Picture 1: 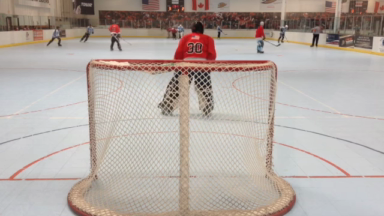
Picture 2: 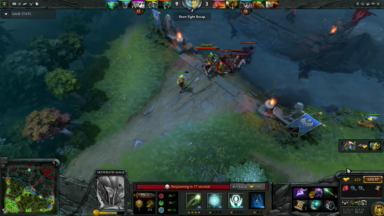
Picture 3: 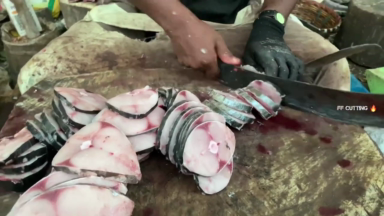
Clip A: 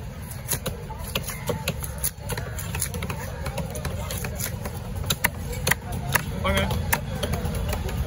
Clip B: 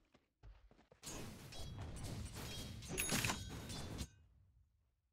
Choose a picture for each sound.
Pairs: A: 3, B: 2